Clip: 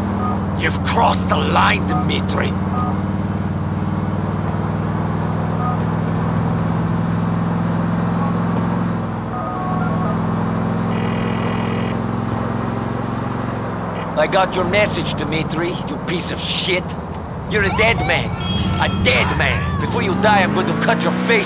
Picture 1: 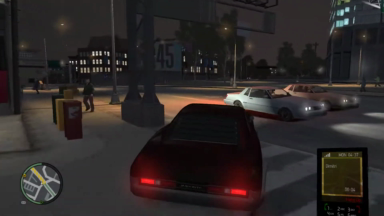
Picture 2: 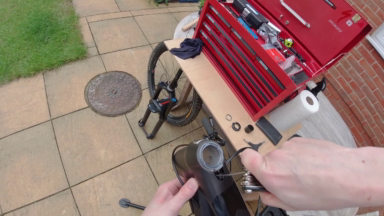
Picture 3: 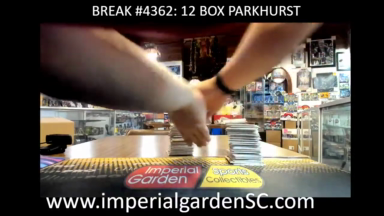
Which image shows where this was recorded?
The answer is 1